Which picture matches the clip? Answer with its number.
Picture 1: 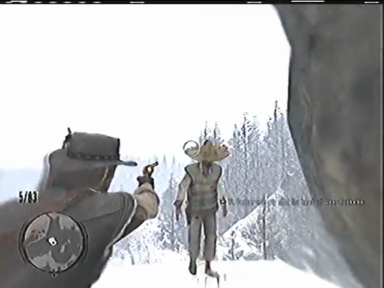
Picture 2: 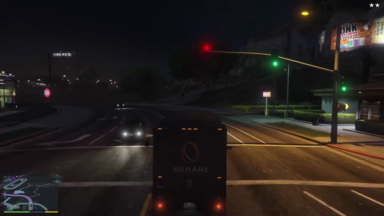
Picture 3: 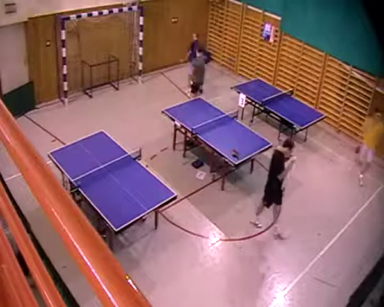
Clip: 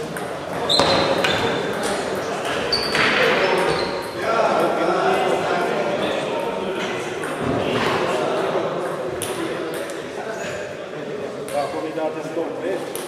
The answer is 3